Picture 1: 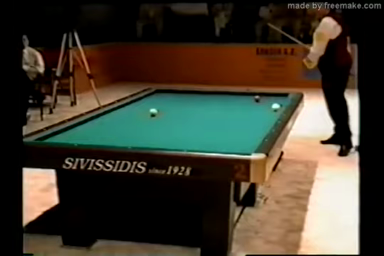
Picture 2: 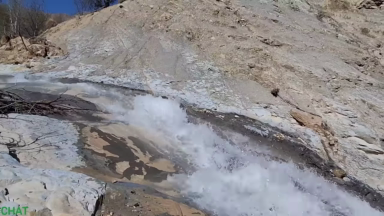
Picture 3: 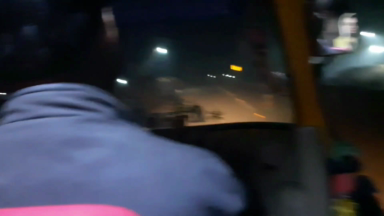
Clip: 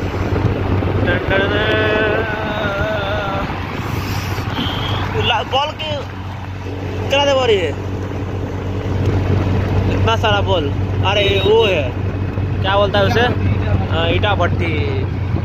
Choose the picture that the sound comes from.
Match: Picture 3